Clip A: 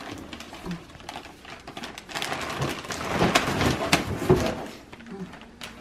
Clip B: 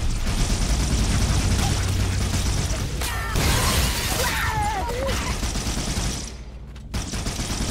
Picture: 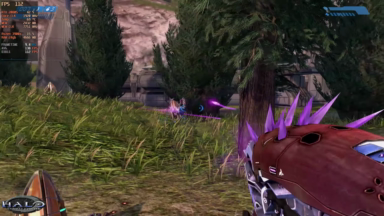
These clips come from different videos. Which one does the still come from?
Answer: B